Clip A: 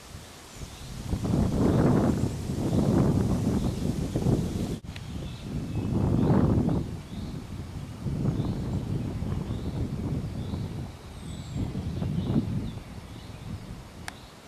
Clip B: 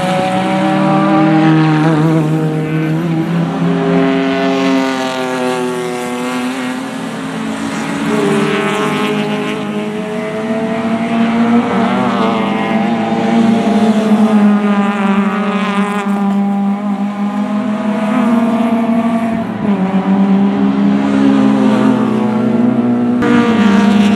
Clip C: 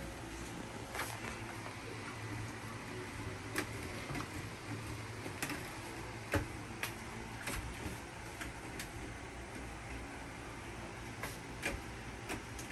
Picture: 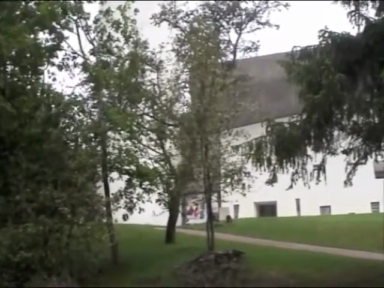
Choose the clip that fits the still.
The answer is A